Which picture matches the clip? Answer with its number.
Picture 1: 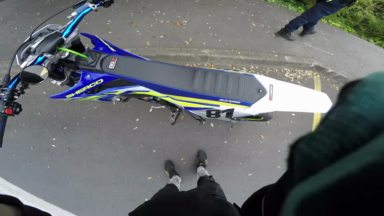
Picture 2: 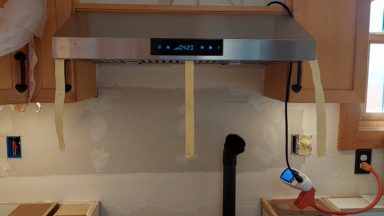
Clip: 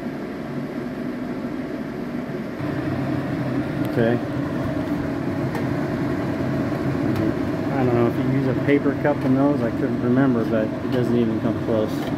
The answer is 2